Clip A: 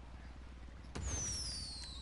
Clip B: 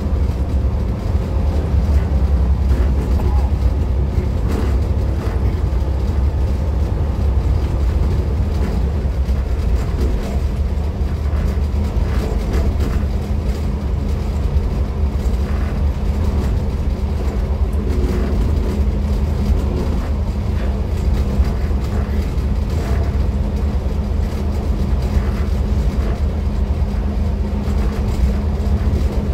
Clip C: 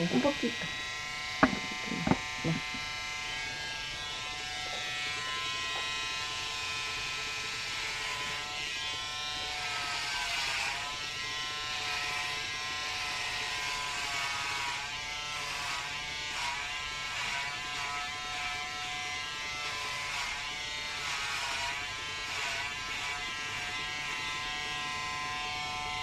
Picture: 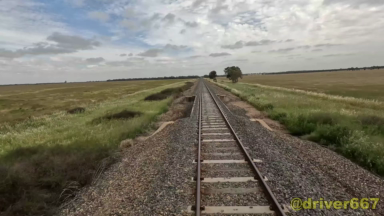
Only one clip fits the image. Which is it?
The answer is B